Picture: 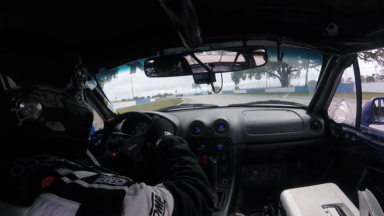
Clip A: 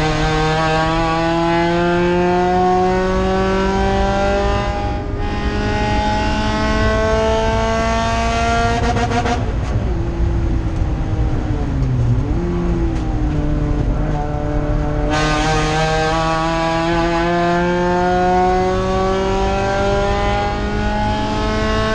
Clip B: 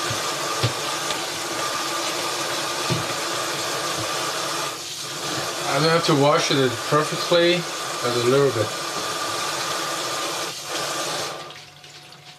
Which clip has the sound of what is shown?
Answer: A